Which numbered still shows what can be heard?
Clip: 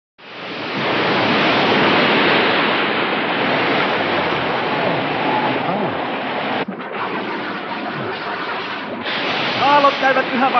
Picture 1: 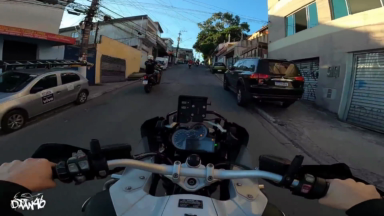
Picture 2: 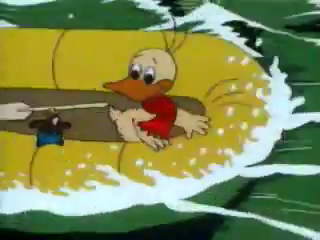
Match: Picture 2